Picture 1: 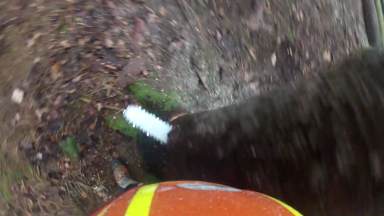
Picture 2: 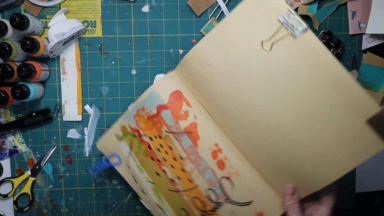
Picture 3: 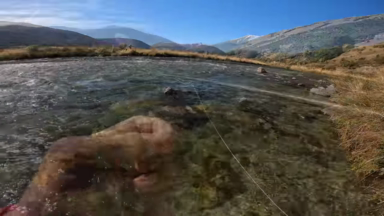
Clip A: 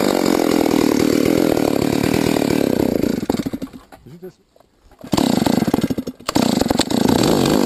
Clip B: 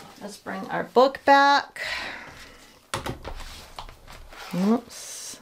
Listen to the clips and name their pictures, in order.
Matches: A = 1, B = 2